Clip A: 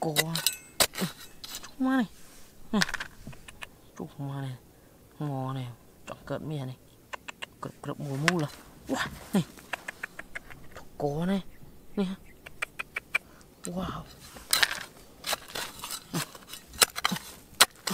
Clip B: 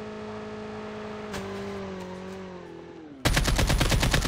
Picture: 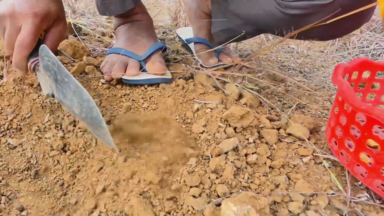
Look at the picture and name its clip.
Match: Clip A